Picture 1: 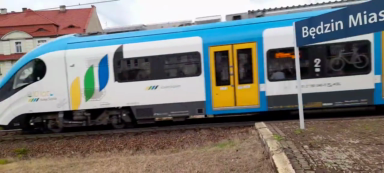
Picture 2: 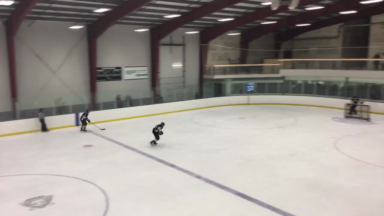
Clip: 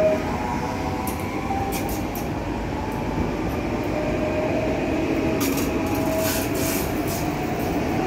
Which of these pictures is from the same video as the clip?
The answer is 1